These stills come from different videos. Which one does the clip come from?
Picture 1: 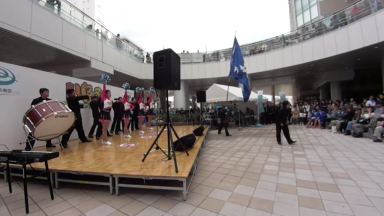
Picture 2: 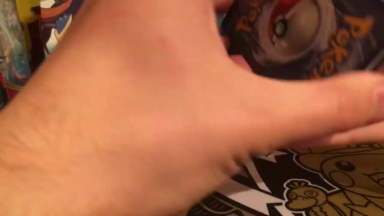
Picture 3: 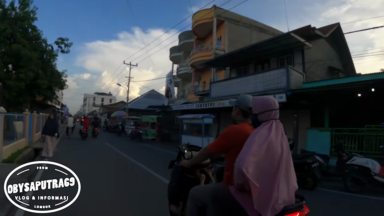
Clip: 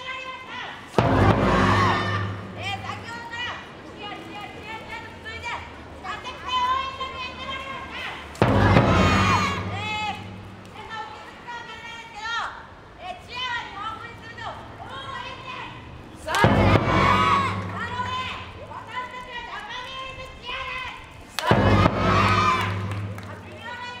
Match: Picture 1